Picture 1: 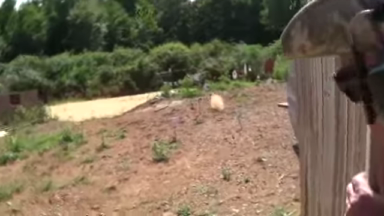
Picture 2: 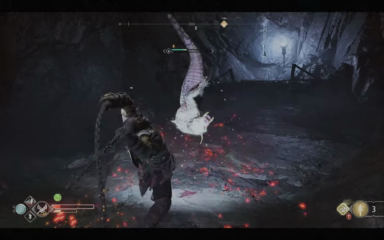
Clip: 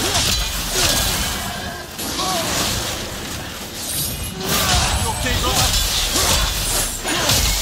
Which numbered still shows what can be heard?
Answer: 2